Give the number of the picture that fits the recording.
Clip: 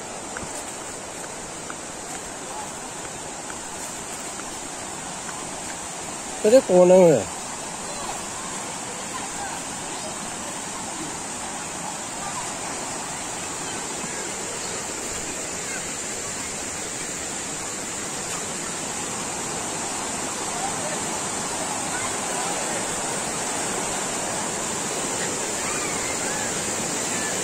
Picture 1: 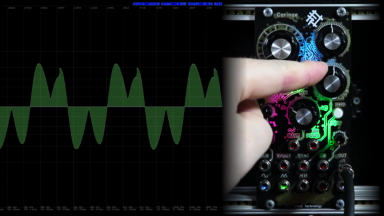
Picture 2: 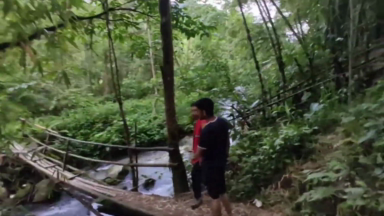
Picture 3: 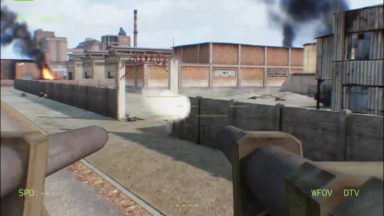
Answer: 2